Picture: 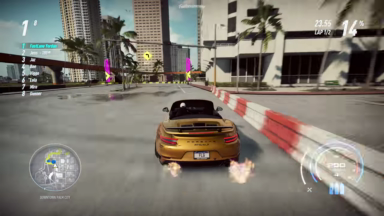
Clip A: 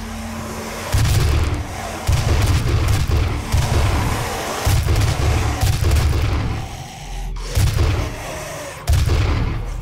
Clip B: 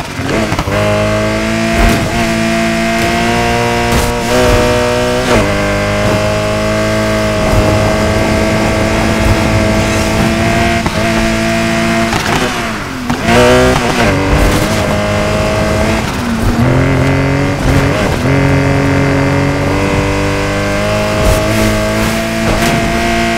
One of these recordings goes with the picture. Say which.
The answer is B